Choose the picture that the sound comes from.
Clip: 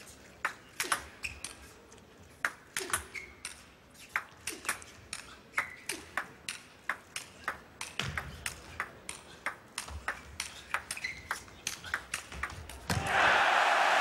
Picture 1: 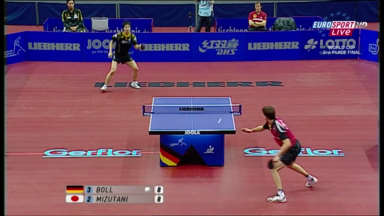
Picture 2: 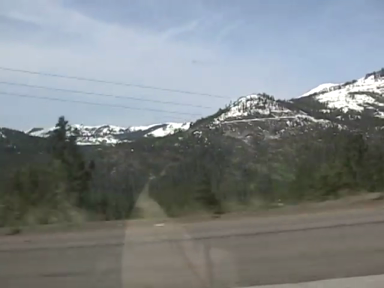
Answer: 1